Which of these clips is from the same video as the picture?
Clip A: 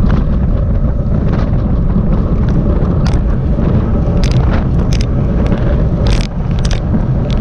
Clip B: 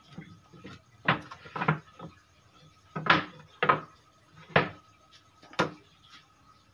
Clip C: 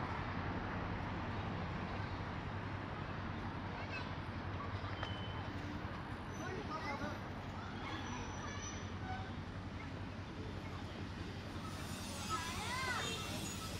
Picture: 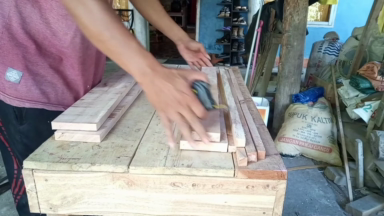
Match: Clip B